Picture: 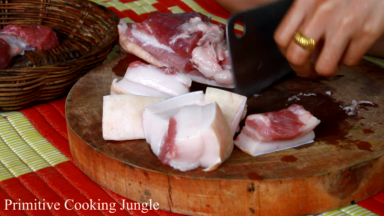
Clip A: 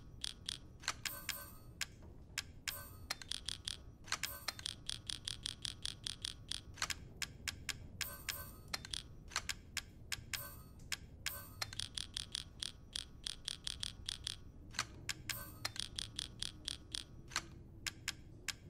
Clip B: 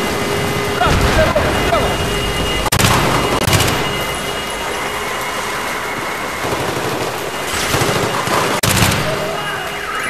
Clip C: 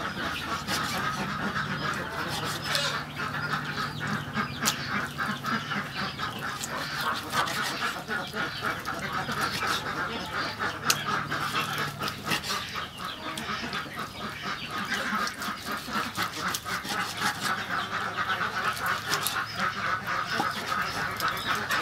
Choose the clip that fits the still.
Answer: C